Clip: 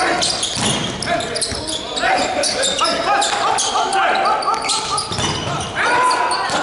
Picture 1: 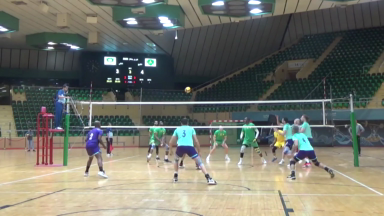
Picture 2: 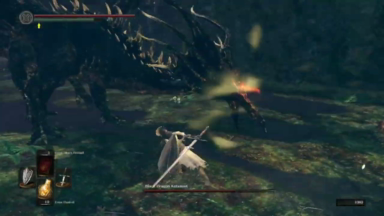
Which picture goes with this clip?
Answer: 1